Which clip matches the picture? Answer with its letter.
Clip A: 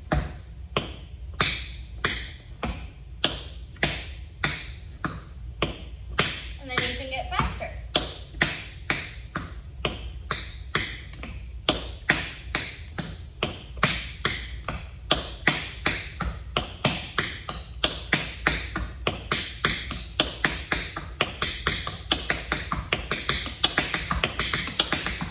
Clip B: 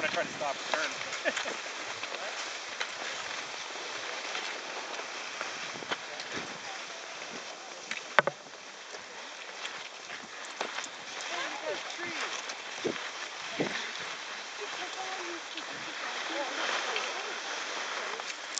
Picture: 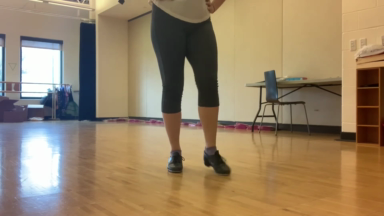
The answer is A